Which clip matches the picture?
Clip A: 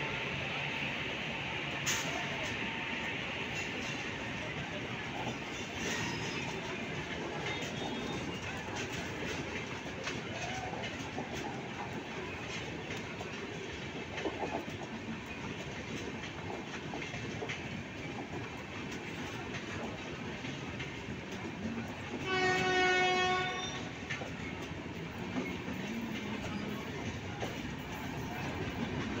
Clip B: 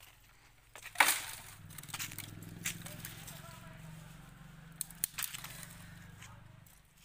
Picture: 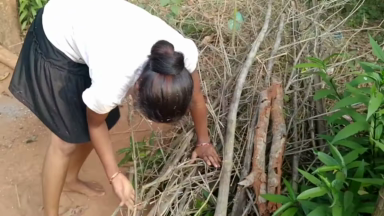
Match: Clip B